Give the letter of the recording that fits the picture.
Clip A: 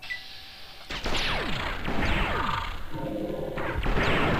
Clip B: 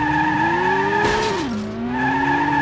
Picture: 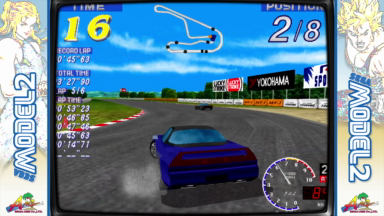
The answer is B